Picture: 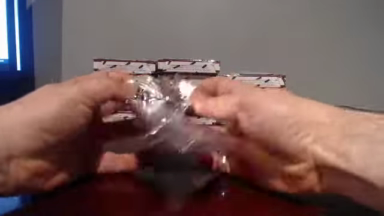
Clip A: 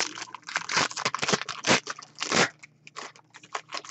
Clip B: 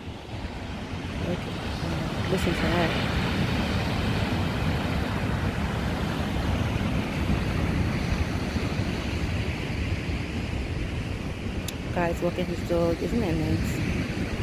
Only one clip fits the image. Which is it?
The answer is A